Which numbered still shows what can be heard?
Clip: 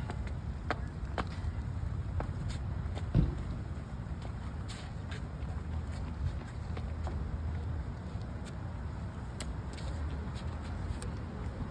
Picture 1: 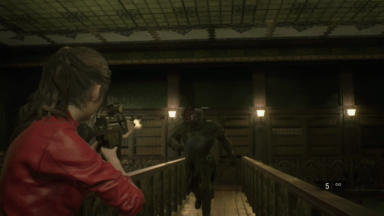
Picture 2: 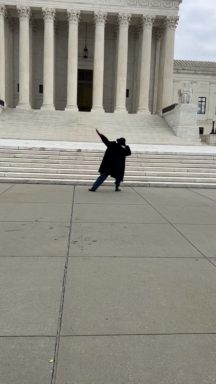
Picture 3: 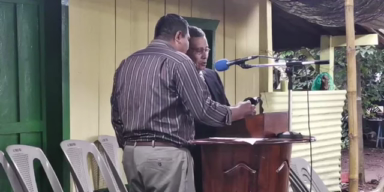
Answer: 2